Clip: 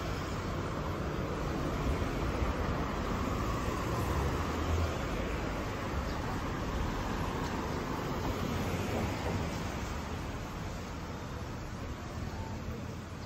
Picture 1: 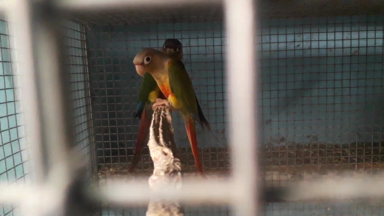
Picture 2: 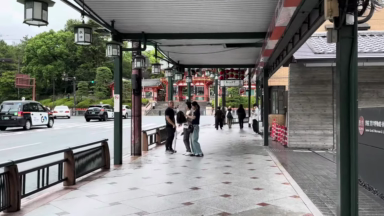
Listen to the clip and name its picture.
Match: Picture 2